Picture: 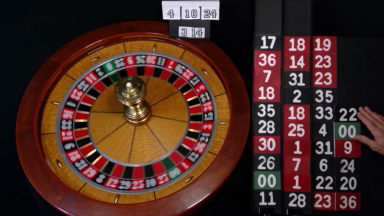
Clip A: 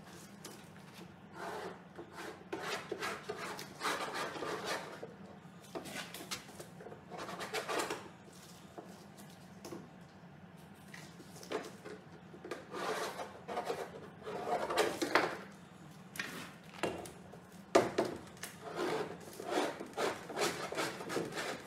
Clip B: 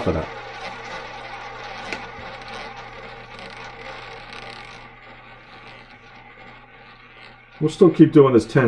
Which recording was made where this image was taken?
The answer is B